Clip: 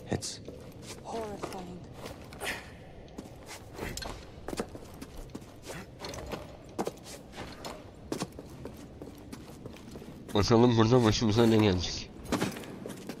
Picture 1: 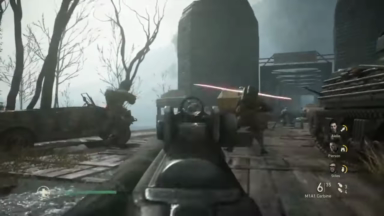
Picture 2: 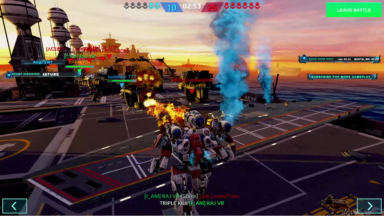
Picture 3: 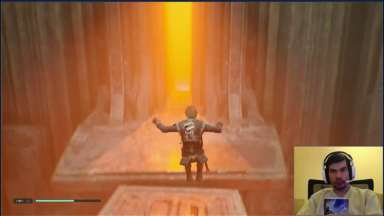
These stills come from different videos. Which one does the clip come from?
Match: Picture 3